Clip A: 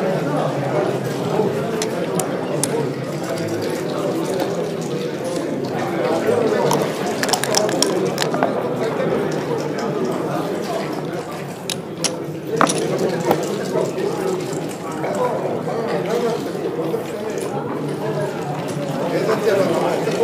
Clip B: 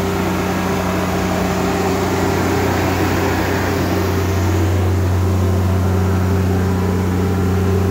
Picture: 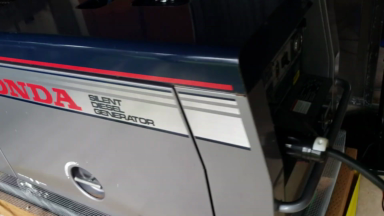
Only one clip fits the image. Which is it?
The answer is B